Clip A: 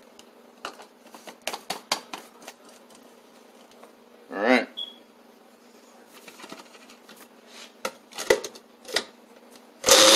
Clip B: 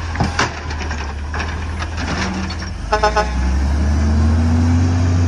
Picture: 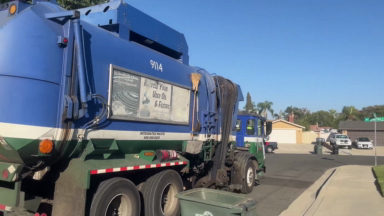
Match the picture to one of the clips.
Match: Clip B